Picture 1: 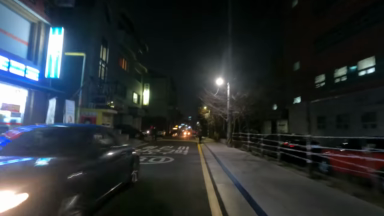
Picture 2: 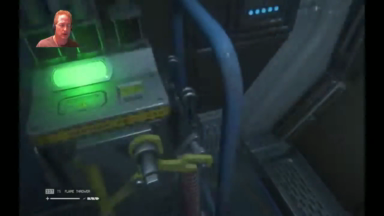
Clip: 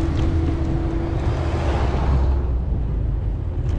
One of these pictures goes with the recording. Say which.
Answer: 1